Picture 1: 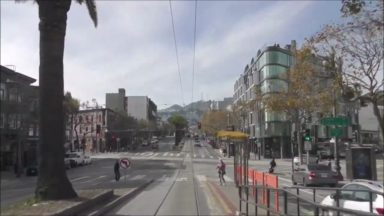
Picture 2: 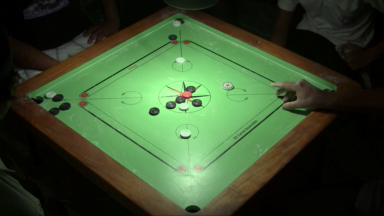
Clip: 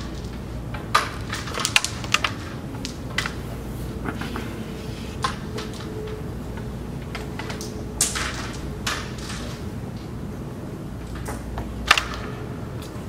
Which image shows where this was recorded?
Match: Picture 2